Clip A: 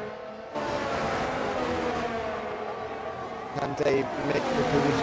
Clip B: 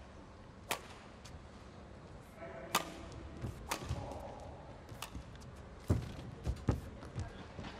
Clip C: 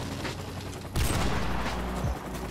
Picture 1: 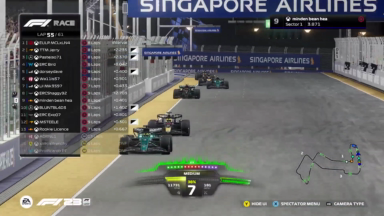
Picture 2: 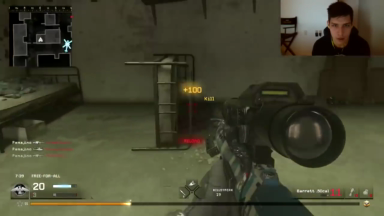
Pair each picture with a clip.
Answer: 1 A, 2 C